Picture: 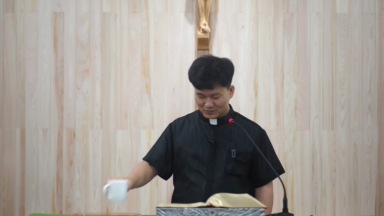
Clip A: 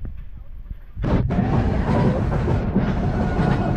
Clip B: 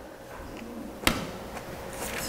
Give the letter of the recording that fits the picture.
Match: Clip B